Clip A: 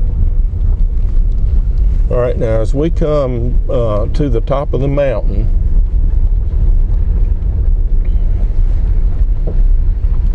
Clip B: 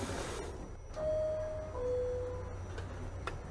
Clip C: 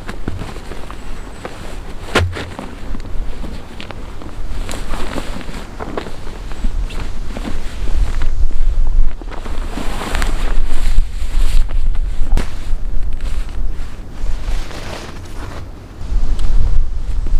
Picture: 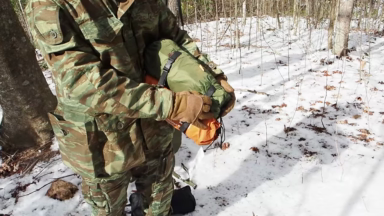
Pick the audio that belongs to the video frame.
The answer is C